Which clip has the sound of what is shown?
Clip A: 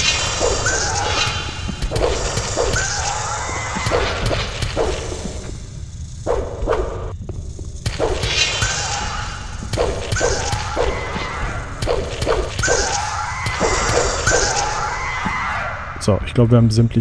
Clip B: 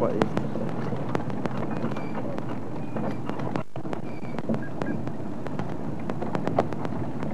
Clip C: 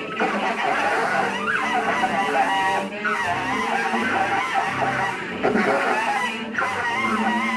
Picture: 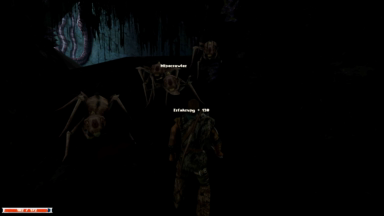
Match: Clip A